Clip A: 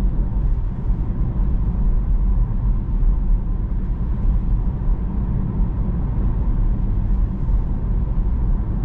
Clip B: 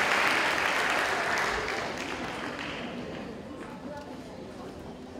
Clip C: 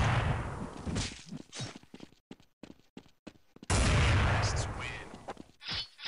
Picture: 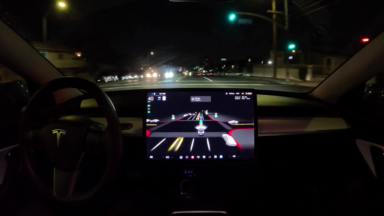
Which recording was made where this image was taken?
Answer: A